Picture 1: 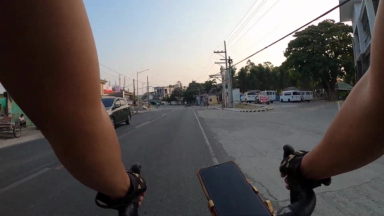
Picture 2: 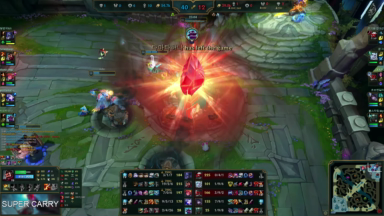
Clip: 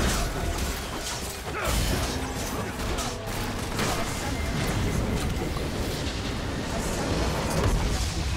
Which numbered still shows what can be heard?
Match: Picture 2